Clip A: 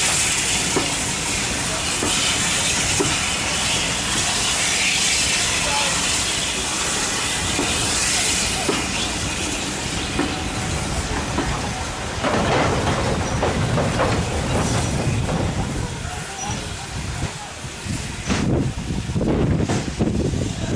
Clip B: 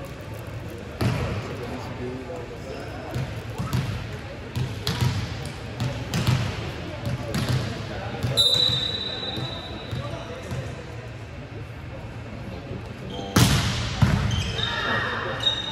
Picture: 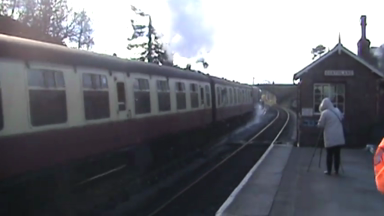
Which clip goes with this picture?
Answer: A